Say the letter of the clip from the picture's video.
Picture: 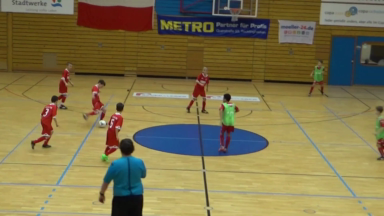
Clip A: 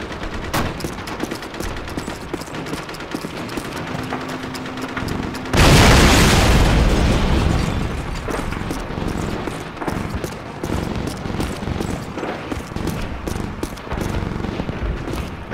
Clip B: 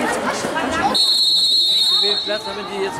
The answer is B